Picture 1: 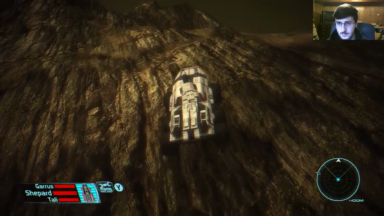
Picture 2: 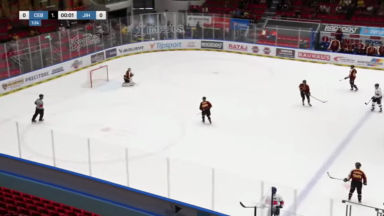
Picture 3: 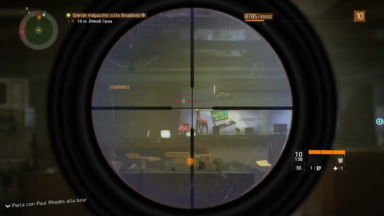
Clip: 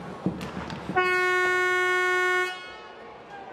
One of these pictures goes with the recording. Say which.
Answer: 2